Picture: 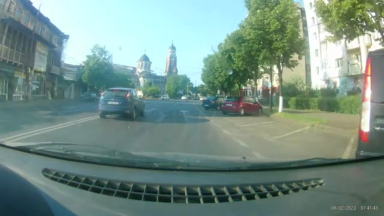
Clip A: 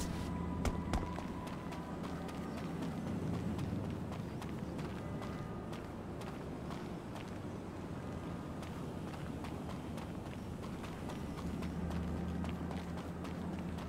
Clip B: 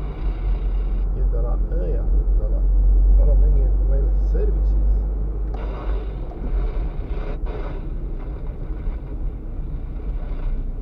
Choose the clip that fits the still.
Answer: B